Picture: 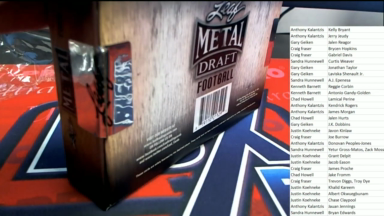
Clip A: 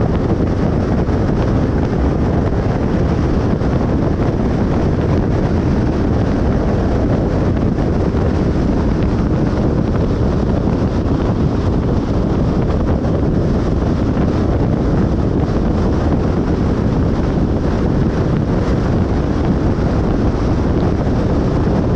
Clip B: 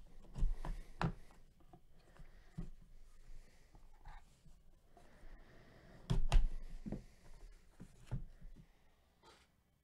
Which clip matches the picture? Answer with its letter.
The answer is B